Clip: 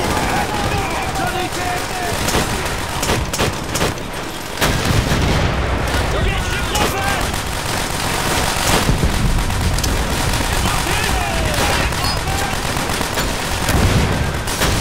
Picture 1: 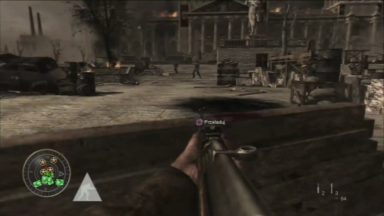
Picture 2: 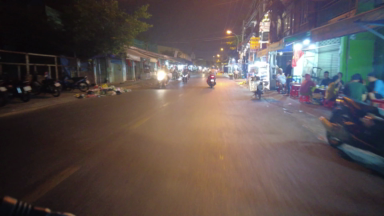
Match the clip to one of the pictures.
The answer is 1